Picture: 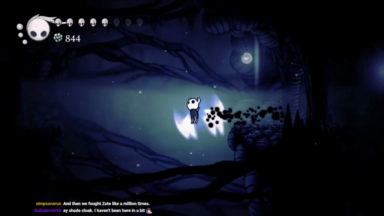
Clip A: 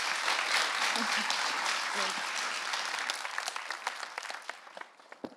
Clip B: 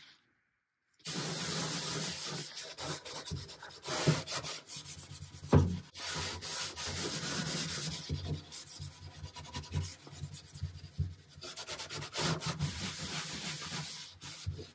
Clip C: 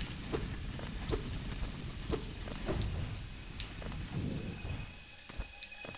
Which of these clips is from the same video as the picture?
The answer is C